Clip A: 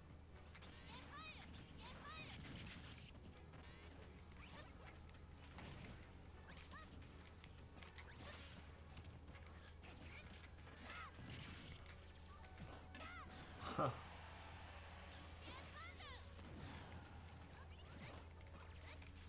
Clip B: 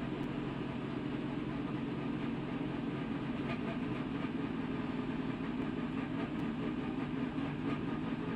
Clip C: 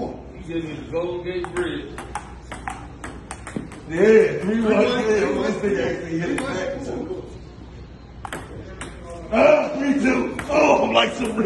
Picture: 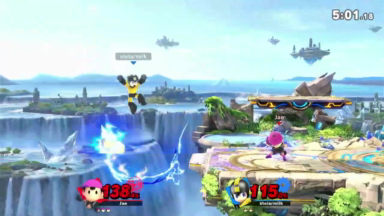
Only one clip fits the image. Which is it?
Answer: A